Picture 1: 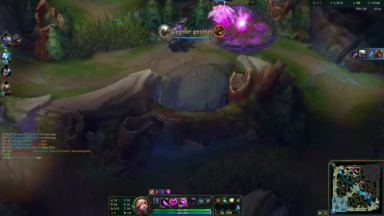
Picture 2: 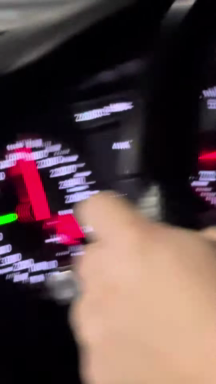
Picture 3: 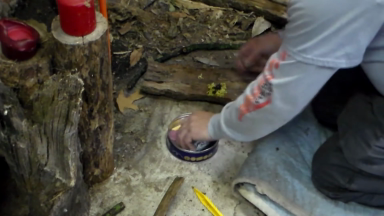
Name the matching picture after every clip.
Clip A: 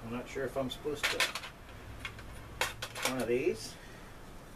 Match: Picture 3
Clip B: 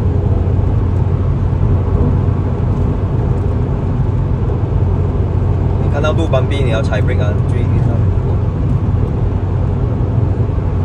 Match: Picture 2